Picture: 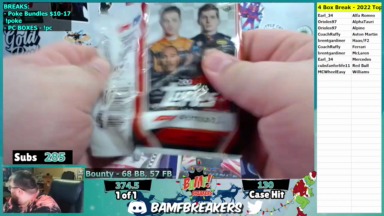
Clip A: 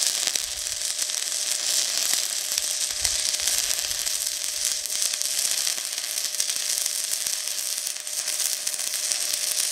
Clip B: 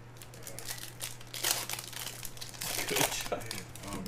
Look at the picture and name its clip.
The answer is B